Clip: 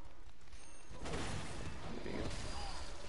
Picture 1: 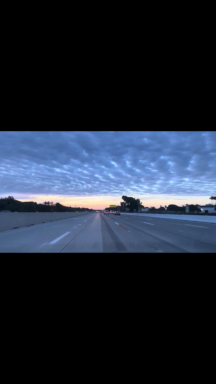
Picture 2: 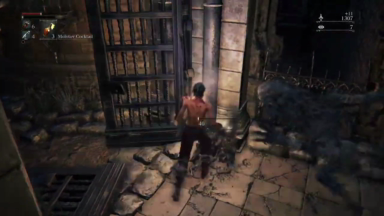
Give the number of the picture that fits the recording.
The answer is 2